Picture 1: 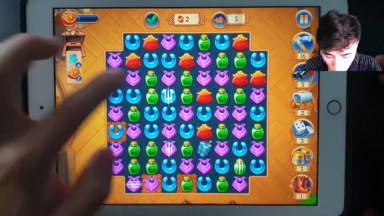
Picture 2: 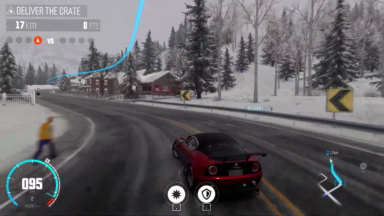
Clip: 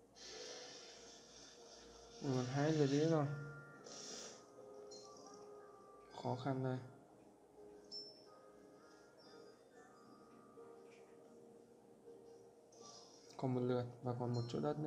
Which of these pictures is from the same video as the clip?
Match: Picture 1